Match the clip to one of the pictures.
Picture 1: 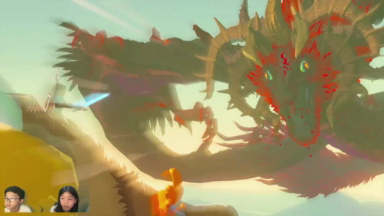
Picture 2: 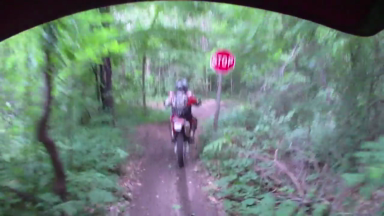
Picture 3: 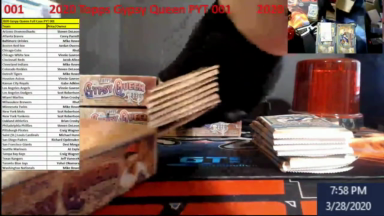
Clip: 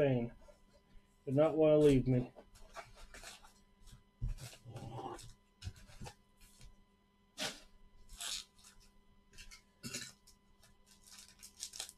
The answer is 3